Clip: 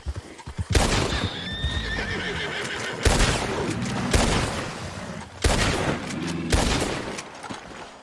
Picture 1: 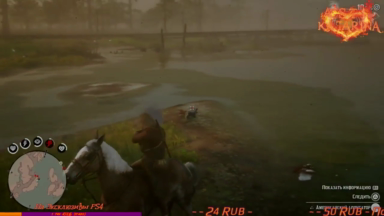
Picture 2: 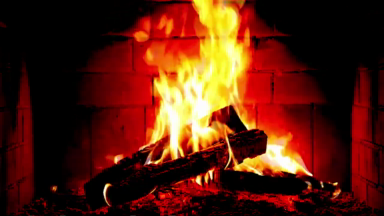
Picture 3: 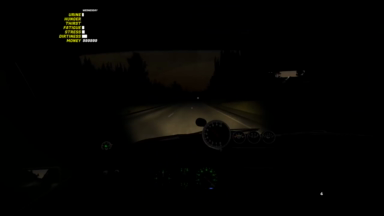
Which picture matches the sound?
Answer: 1